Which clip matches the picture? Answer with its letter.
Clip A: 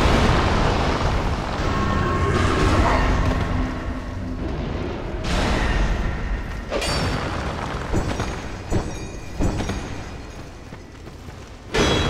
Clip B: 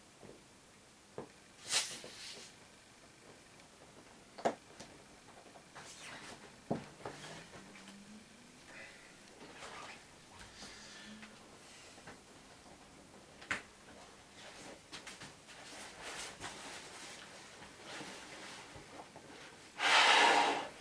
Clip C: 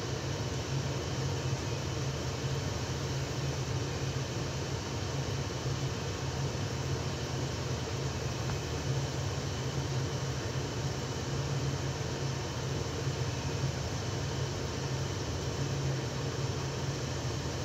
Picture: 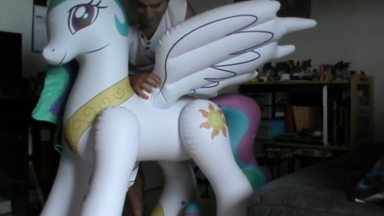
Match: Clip B